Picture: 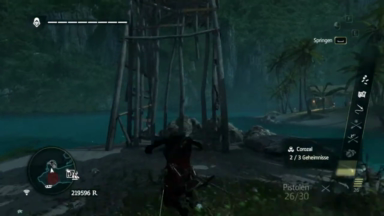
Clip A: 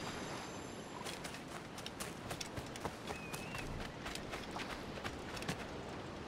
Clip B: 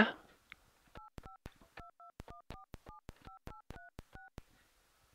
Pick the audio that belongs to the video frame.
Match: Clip A